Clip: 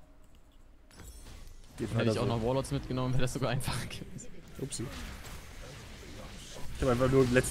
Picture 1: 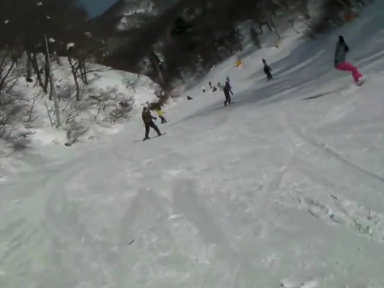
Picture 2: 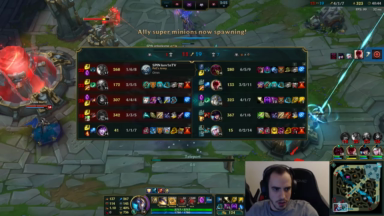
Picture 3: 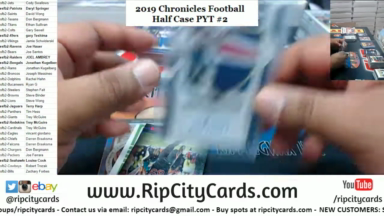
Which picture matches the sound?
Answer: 2